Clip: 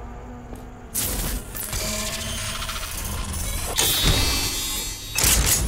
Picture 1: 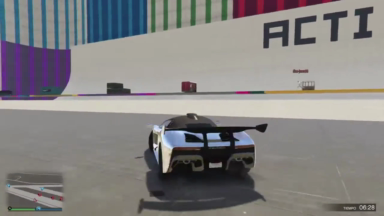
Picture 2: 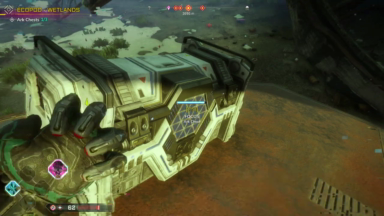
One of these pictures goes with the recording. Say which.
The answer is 2